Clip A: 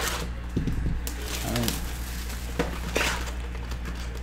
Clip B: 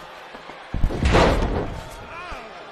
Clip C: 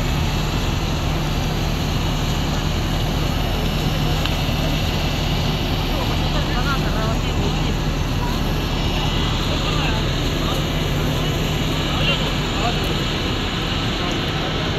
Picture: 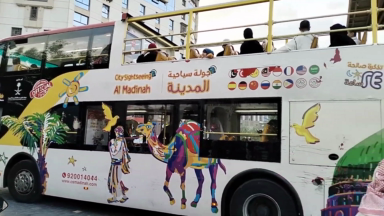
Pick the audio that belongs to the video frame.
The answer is C